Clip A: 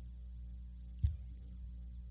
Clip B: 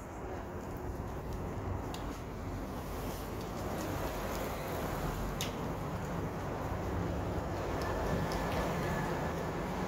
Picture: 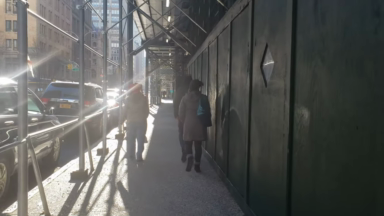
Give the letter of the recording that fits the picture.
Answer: B